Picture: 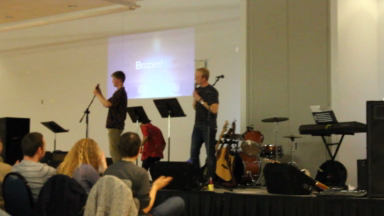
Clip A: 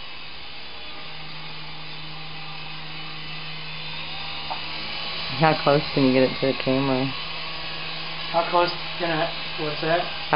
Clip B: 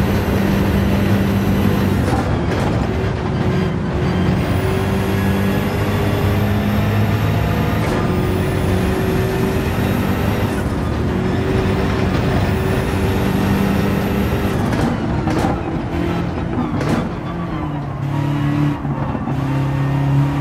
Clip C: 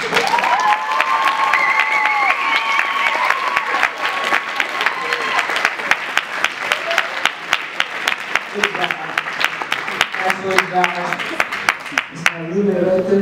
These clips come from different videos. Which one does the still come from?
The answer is C